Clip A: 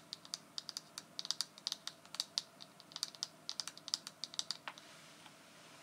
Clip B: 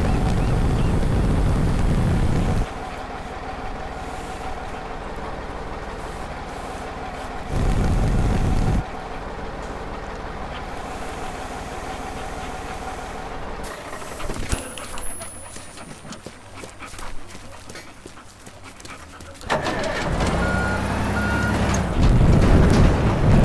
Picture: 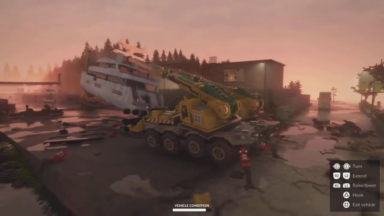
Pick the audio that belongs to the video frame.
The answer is B